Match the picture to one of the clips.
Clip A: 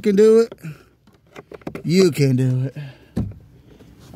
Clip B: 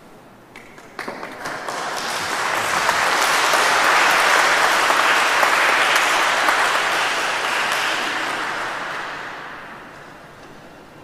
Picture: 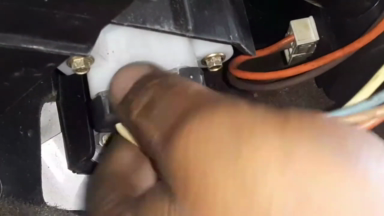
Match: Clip A